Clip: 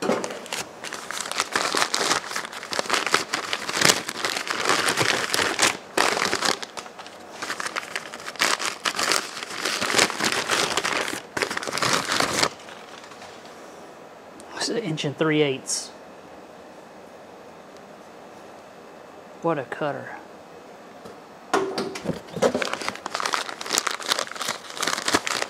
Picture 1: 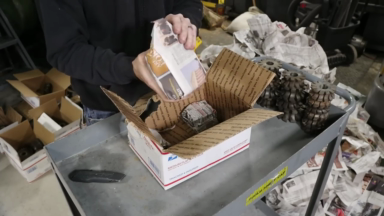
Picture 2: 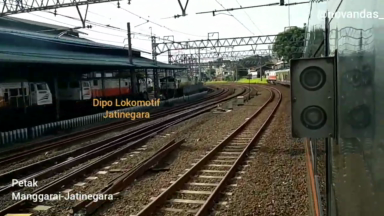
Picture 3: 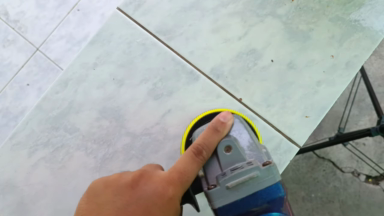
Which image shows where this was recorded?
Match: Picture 1